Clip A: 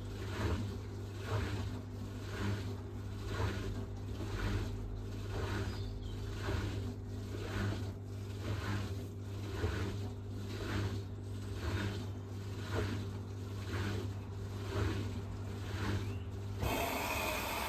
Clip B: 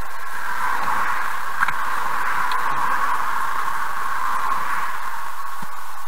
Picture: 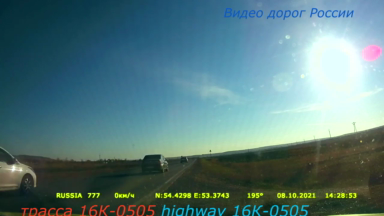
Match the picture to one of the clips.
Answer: B